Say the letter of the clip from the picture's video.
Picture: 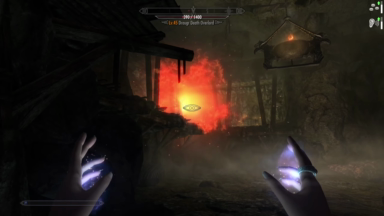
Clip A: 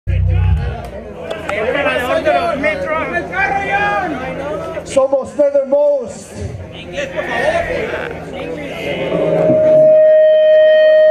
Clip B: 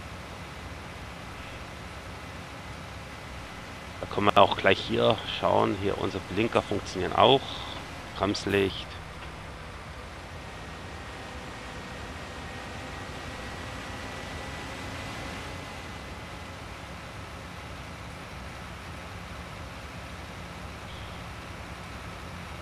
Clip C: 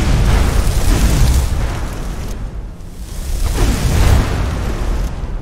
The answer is C